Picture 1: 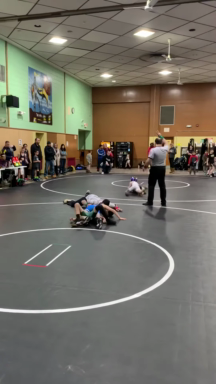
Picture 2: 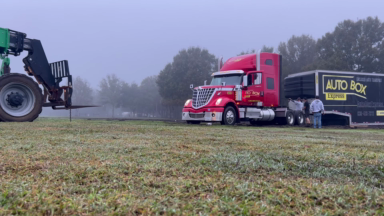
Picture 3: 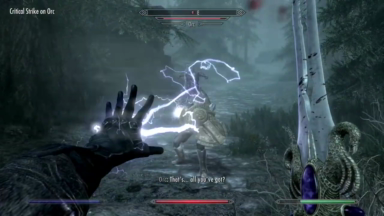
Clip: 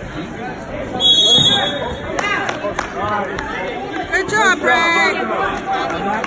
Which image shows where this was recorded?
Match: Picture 1